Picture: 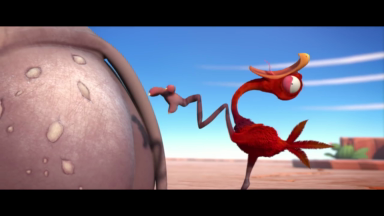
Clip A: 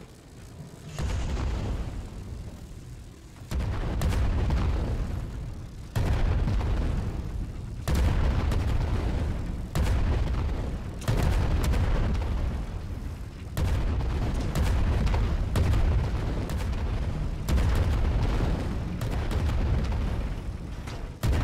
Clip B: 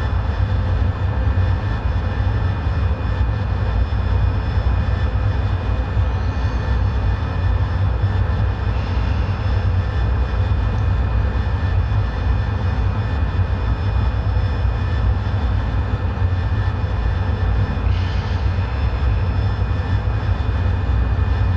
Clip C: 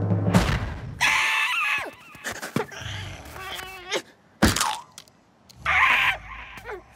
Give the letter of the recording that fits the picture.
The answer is C